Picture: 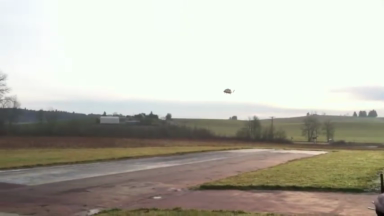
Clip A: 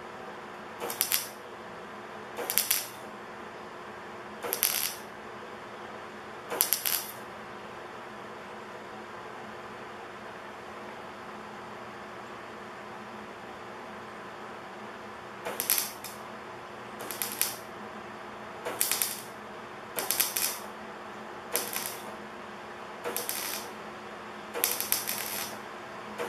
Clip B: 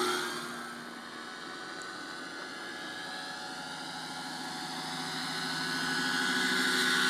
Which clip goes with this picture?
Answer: B